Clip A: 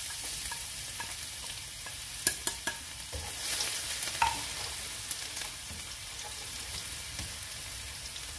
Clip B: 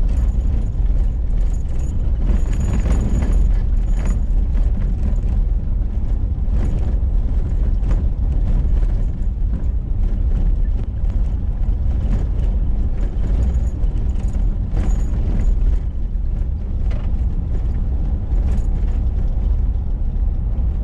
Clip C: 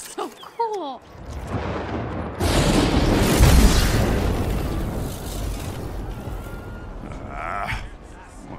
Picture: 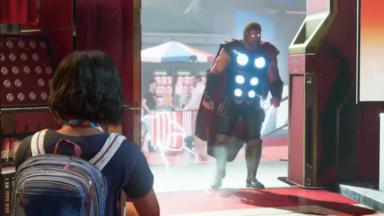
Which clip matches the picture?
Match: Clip C